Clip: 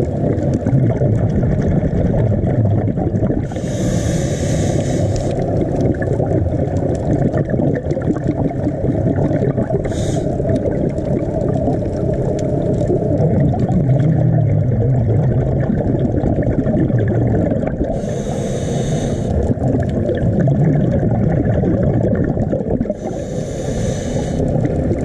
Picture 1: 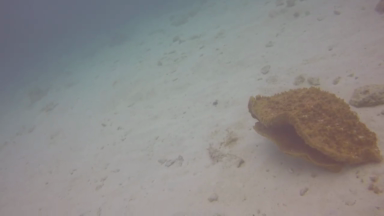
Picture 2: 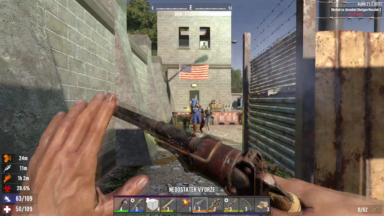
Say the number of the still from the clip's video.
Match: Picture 1